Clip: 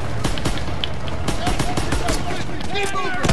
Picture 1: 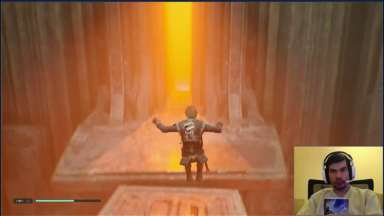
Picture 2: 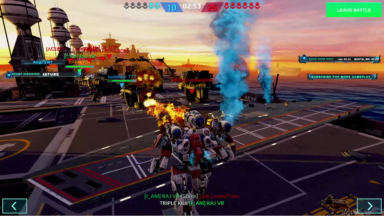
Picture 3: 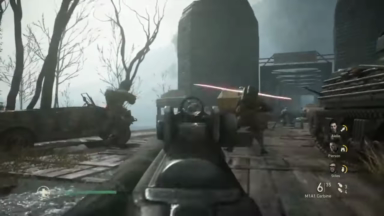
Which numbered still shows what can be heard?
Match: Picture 3